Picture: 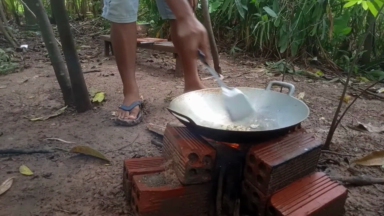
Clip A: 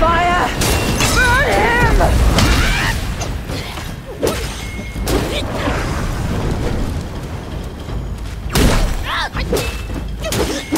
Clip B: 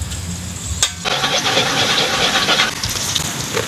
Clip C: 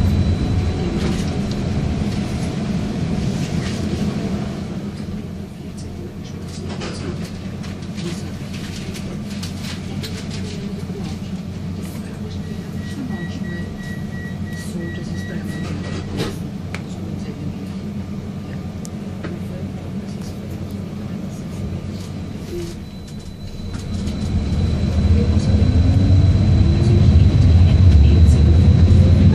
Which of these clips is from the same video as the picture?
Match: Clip B